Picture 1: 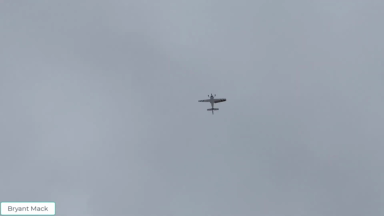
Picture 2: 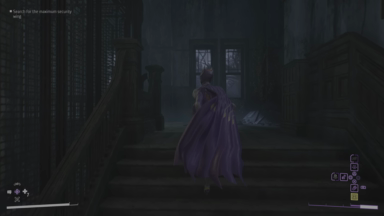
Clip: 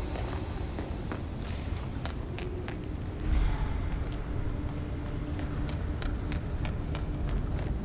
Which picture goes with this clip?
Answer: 2